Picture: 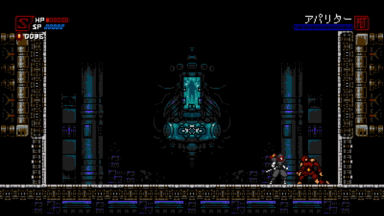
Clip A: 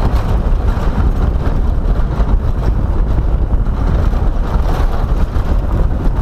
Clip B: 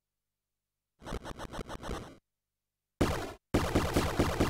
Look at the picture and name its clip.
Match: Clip B